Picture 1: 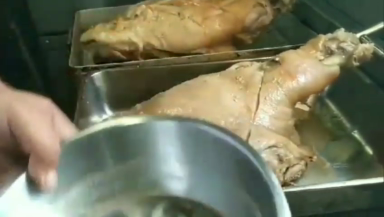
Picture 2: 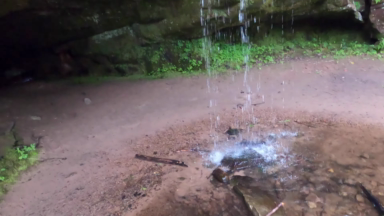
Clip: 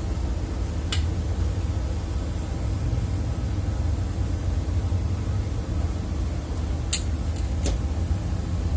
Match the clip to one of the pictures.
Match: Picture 1